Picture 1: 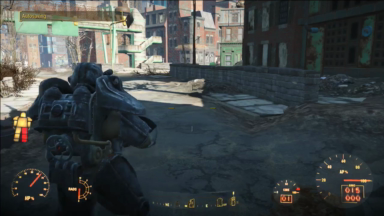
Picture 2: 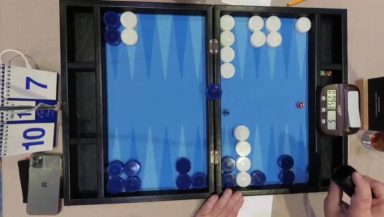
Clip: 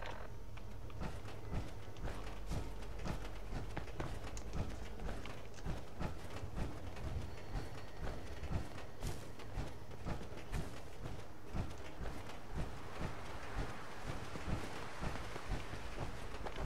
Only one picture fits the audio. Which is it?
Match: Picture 1